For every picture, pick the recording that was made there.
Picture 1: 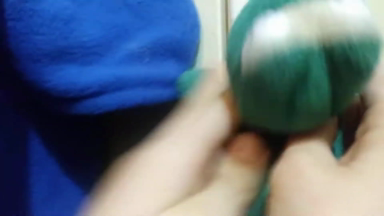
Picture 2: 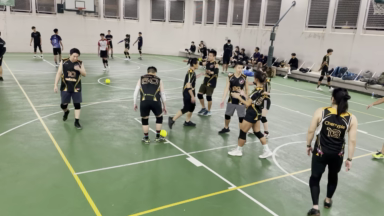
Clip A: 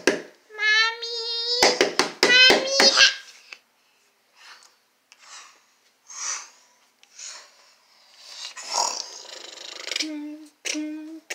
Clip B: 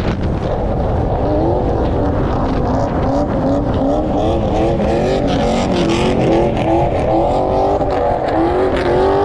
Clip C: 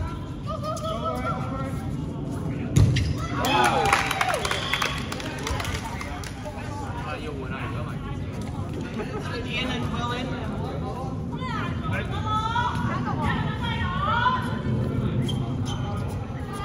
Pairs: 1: A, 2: C